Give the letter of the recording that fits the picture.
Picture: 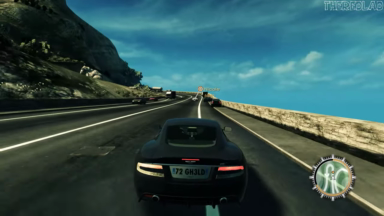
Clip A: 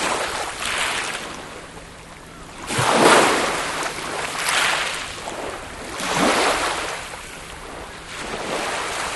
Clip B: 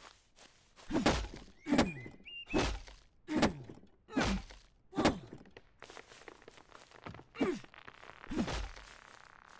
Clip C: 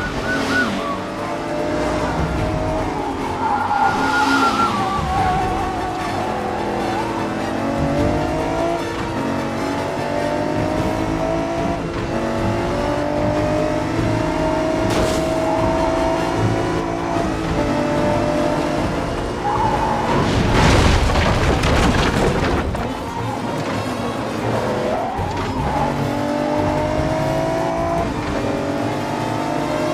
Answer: C